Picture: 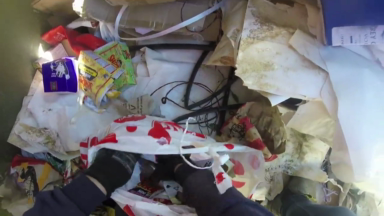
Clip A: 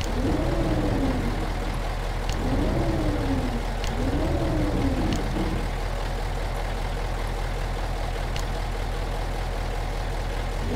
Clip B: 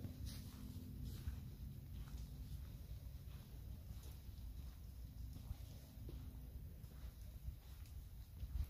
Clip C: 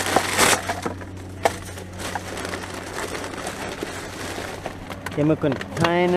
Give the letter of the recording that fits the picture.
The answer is C